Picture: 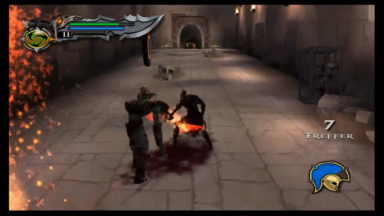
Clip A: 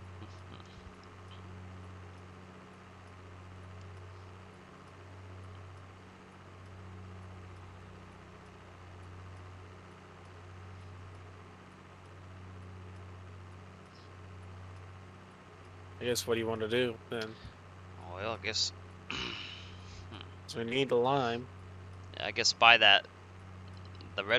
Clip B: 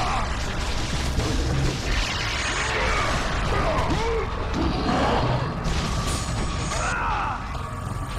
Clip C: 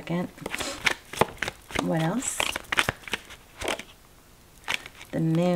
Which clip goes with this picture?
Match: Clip B